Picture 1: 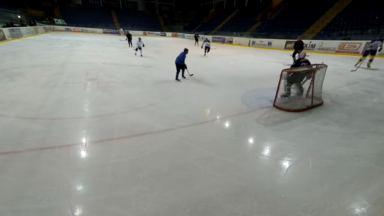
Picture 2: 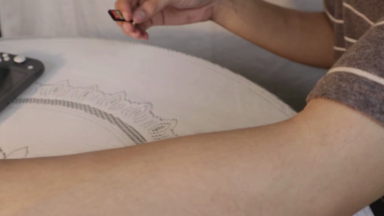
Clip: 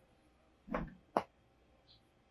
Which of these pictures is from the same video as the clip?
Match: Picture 2